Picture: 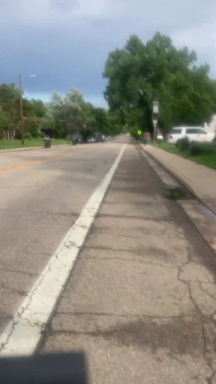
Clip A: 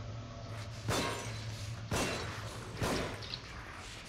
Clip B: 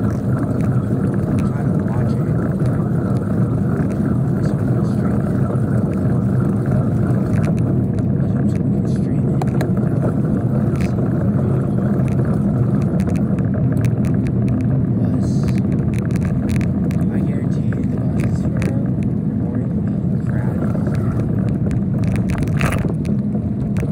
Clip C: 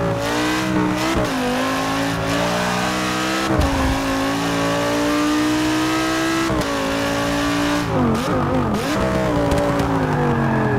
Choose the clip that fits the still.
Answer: B